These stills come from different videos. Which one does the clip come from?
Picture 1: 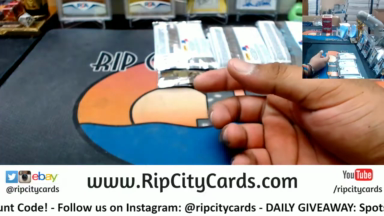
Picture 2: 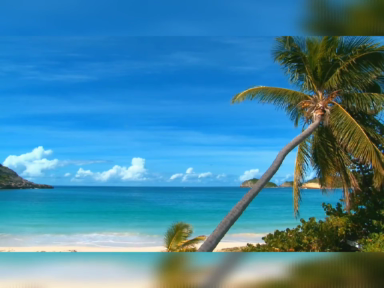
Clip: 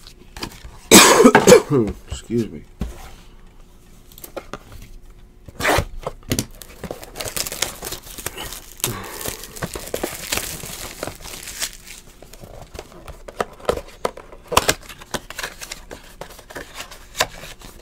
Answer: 1